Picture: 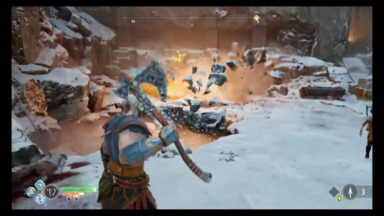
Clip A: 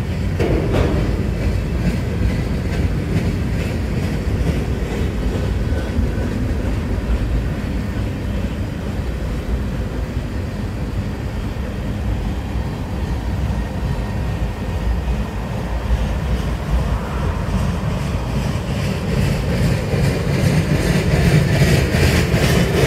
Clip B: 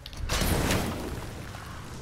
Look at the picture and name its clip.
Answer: B